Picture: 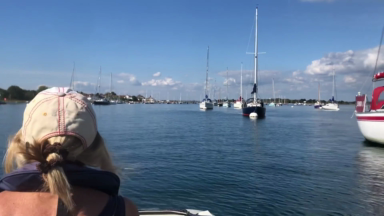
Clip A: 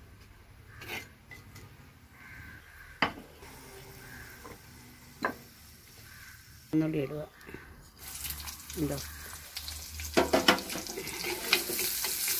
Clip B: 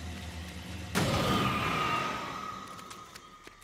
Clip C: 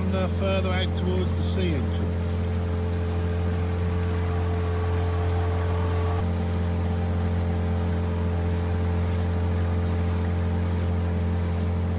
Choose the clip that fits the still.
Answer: C